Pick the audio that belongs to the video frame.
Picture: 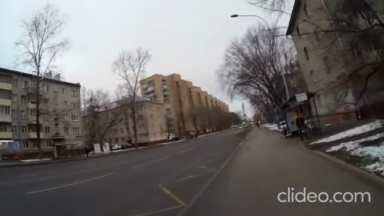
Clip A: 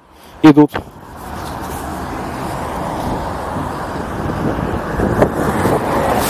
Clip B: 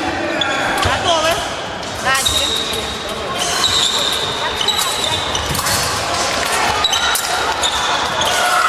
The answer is A